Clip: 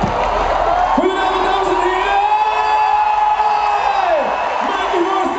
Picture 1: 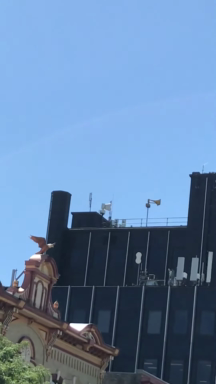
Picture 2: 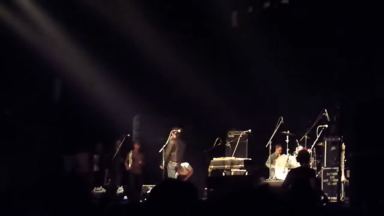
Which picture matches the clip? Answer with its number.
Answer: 2